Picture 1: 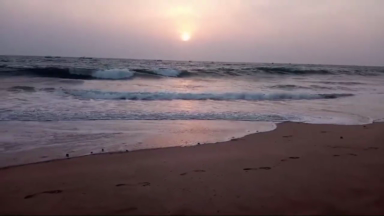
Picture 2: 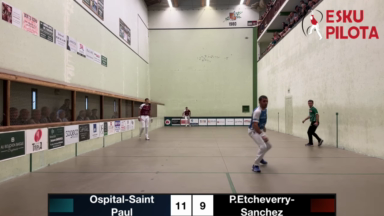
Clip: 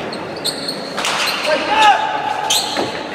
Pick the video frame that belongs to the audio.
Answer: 2